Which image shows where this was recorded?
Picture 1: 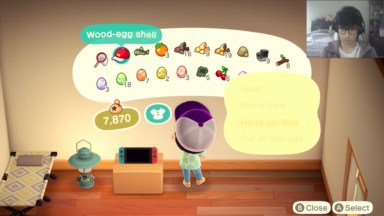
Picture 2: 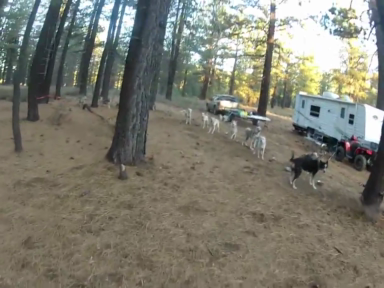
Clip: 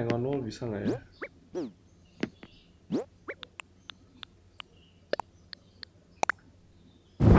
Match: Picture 1